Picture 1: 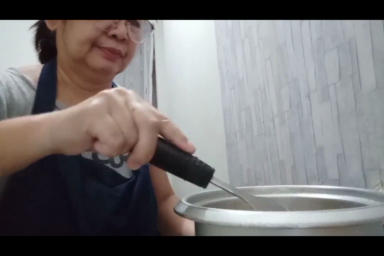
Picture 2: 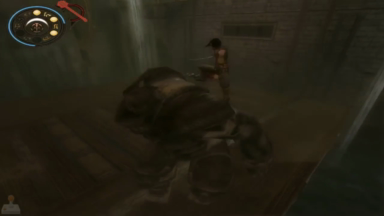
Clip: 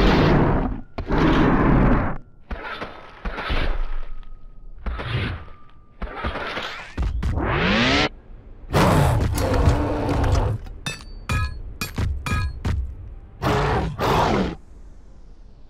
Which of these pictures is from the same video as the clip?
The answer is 2